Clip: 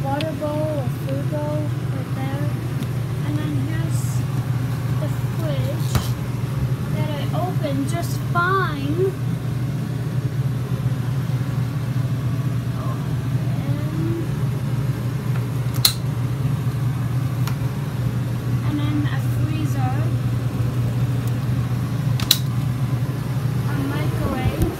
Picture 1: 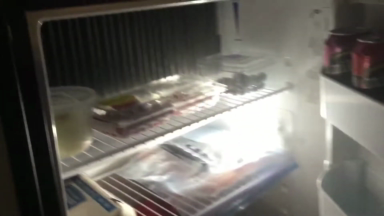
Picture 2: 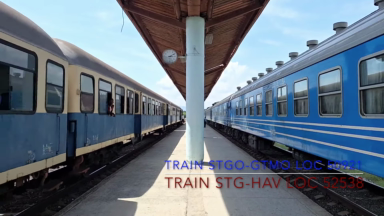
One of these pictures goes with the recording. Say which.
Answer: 1